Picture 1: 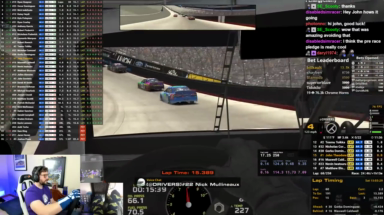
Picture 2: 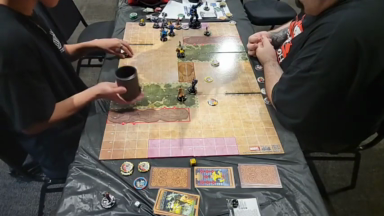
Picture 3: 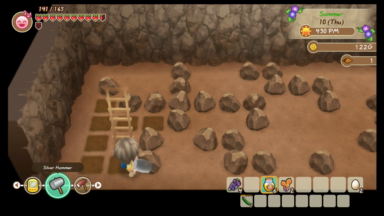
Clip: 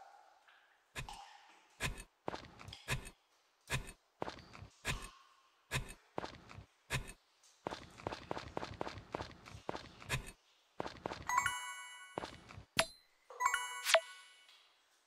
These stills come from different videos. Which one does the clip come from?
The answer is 3